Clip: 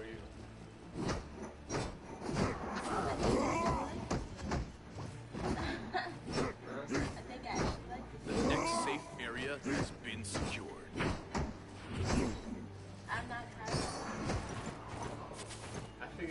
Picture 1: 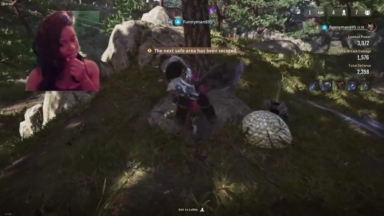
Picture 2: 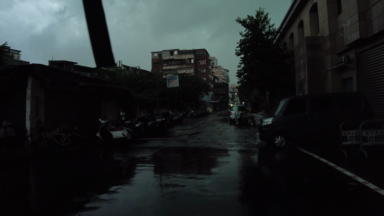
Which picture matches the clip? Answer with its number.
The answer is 1